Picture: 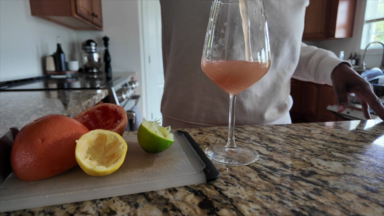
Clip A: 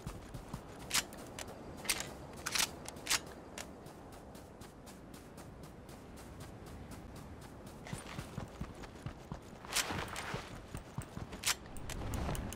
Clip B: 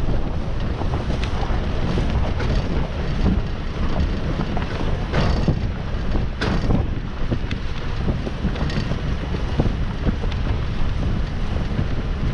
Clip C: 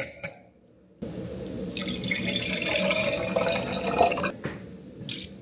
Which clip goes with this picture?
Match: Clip C